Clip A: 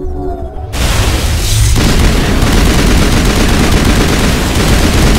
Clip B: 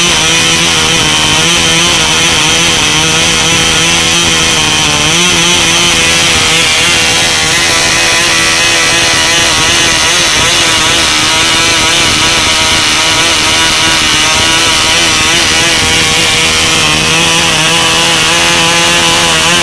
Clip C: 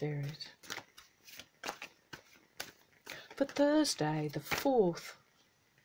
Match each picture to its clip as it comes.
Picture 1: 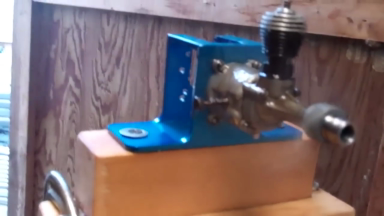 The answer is B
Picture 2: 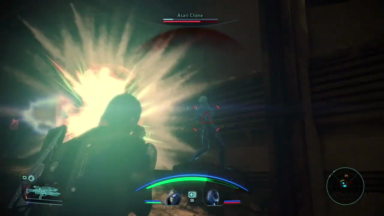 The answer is A